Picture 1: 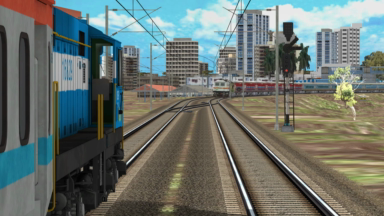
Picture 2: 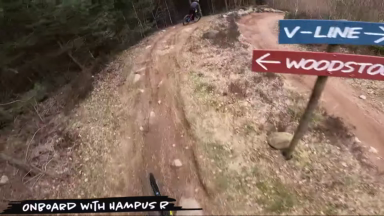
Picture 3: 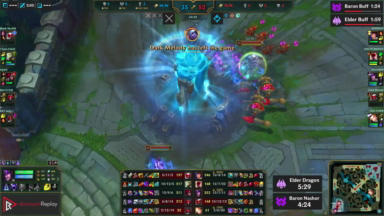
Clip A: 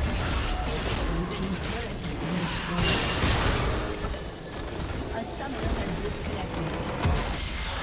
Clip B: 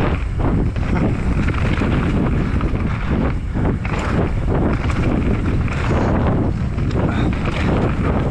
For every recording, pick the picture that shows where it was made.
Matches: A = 3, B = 2